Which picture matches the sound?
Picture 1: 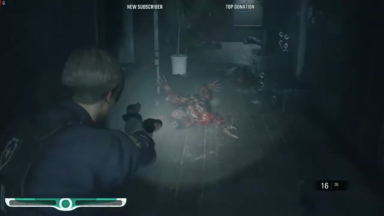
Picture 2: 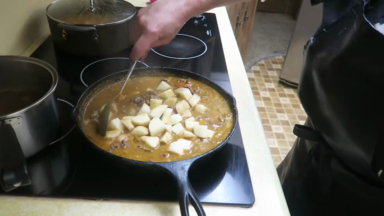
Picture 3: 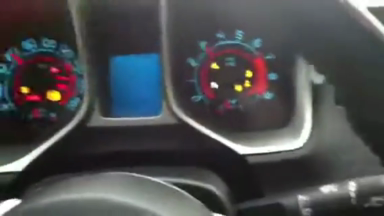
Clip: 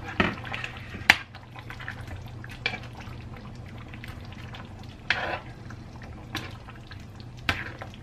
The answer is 2